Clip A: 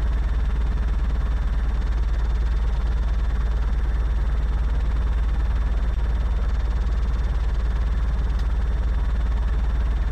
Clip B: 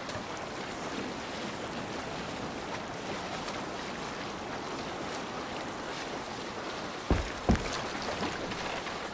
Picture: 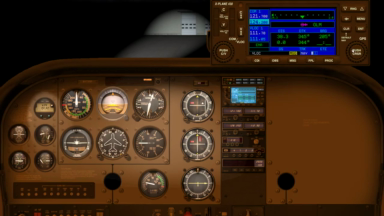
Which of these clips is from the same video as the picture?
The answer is A